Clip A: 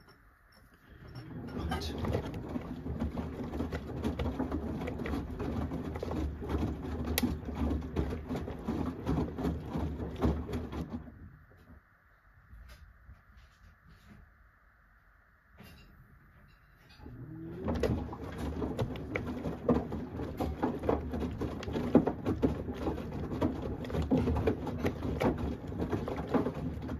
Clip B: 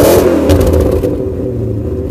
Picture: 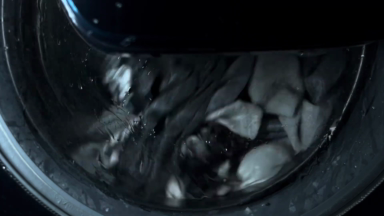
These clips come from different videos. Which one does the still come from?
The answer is A